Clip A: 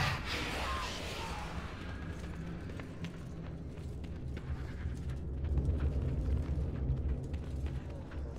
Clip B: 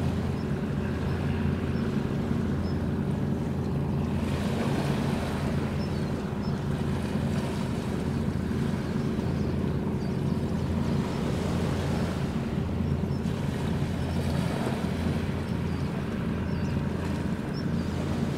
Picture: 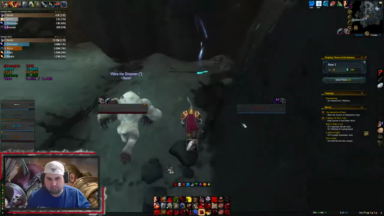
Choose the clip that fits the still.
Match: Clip A